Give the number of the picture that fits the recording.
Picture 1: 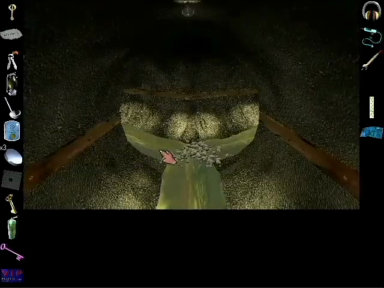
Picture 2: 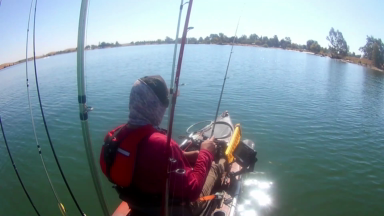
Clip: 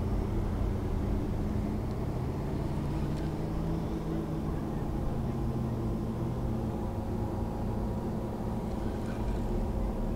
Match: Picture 2